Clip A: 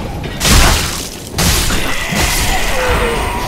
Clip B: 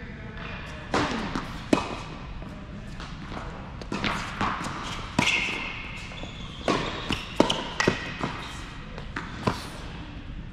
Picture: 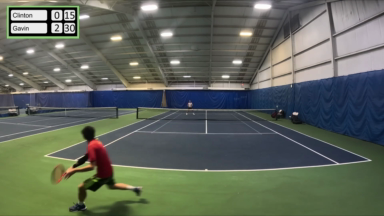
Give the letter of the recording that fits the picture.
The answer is B